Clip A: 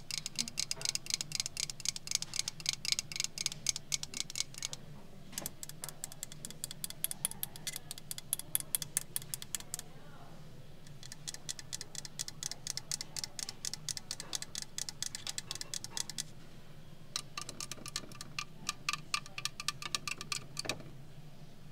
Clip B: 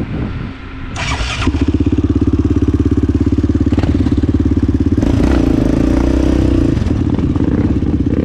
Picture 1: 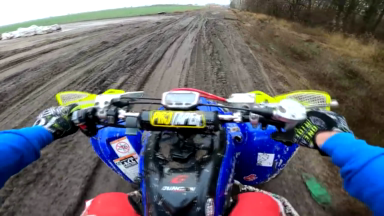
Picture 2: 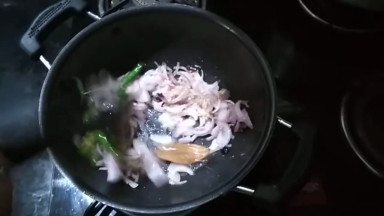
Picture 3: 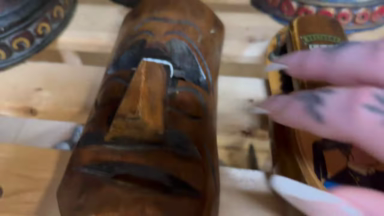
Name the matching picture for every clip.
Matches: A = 3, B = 1